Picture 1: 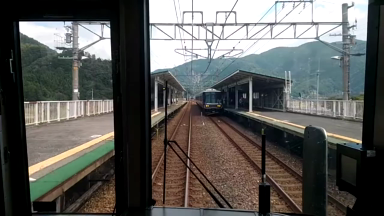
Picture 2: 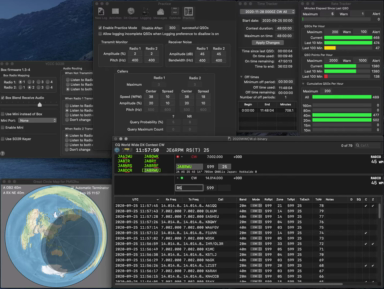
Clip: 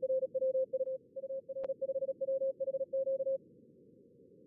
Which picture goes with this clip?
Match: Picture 2